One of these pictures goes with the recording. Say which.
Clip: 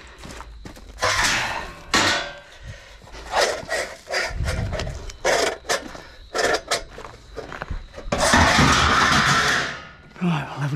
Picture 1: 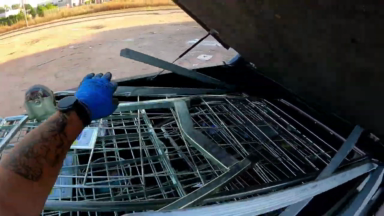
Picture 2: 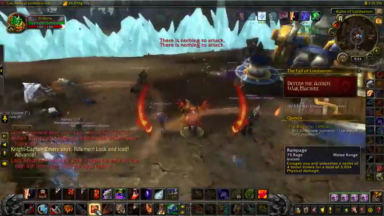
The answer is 1